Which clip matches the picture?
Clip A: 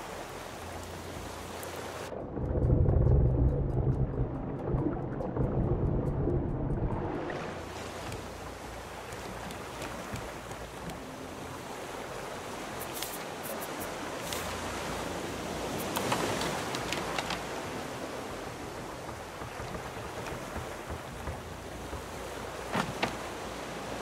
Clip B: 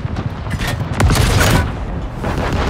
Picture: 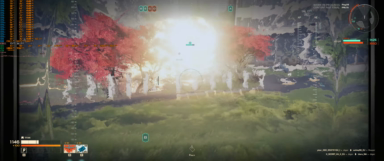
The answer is B